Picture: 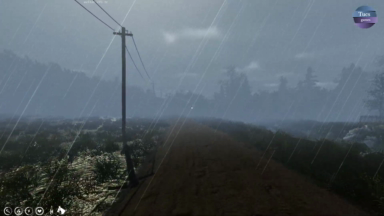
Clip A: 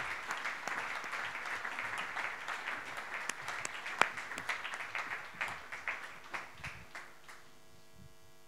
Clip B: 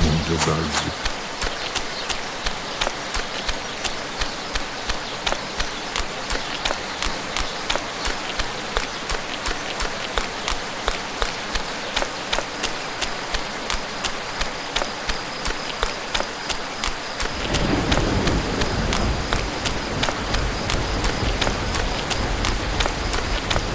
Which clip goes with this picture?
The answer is B